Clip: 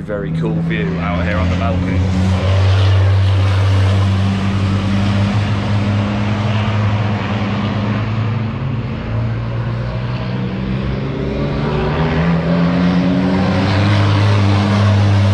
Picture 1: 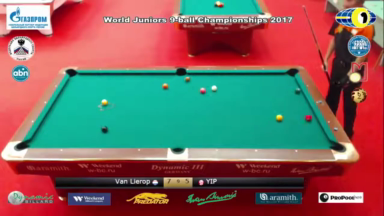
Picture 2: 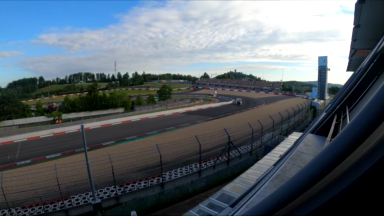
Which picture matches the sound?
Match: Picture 2